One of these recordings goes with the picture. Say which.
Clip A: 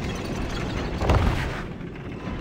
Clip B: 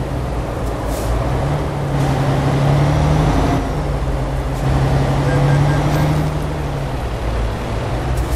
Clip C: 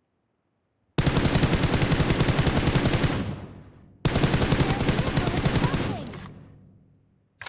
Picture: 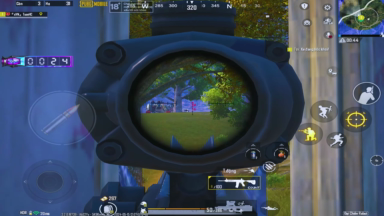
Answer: C